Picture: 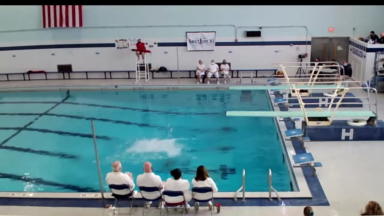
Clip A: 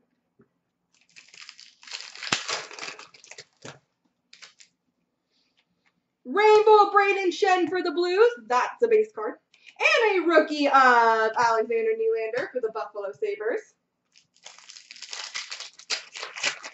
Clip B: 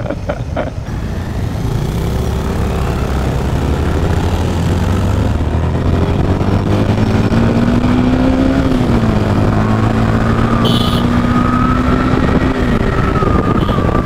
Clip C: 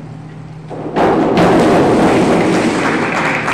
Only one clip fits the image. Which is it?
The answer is C